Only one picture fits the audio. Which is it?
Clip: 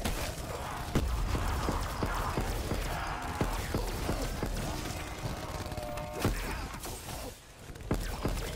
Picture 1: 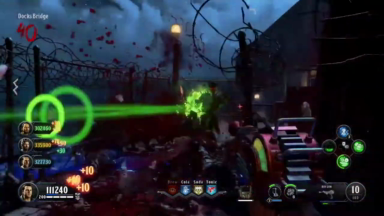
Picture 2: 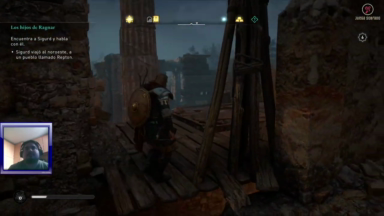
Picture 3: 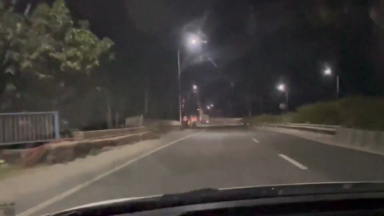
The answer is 1